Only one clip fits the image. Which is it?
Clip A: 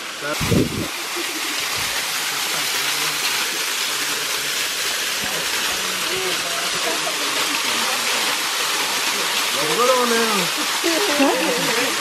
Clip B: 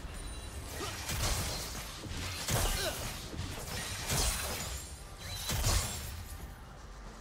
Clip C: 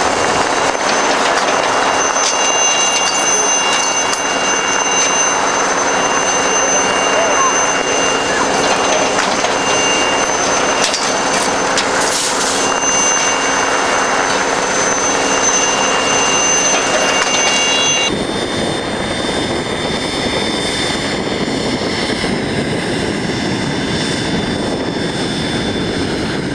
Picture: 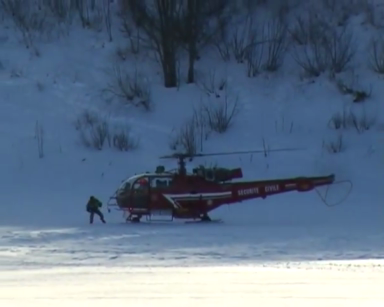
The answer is C